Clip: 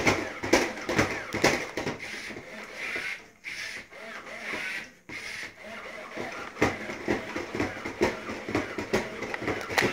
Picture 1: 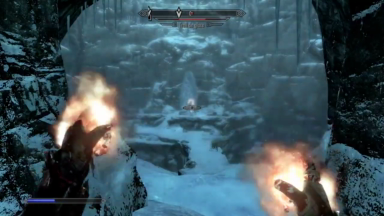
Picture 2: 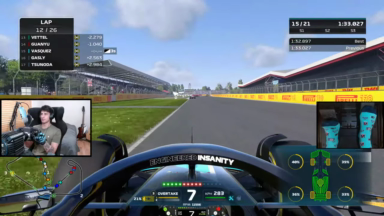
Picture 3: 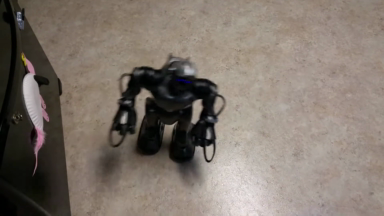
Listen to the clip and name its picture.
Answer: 3